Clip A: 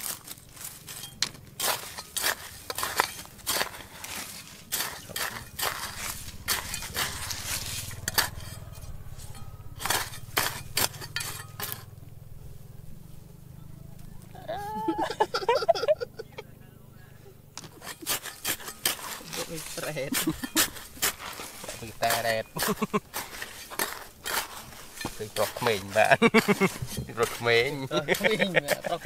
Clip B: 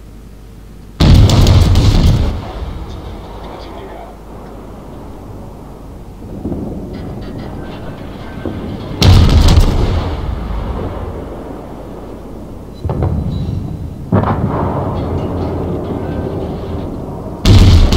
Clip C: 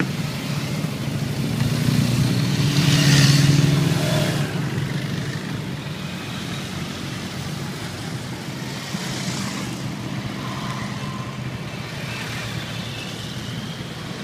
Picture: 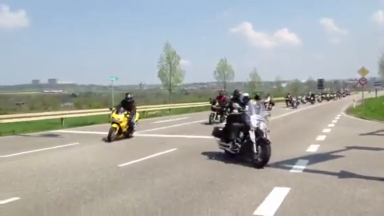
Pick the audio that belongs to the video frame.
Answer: C